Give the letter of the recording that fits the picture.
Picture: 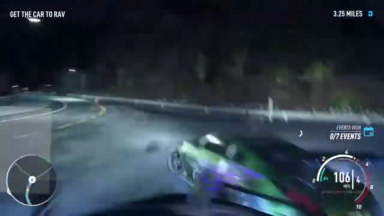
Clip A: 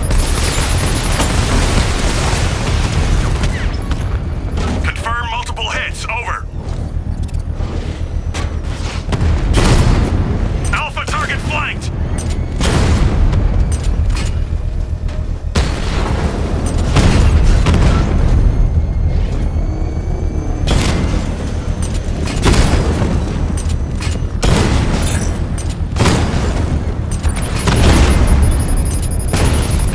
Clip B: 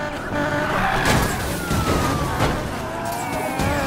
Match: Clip B